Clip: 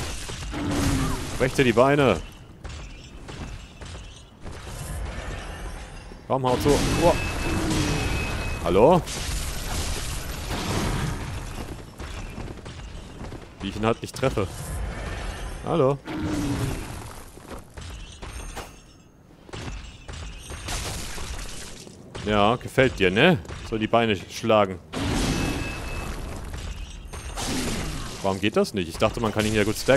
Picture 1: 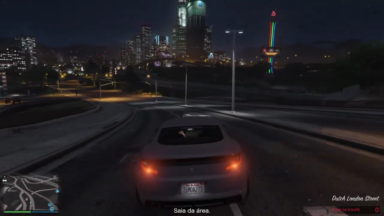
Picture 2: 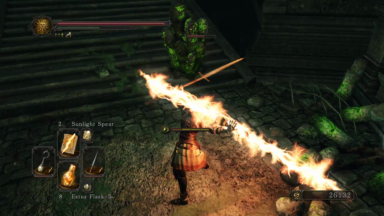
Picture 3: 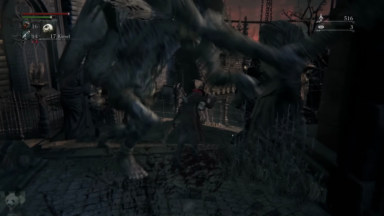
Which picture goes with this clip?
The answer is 3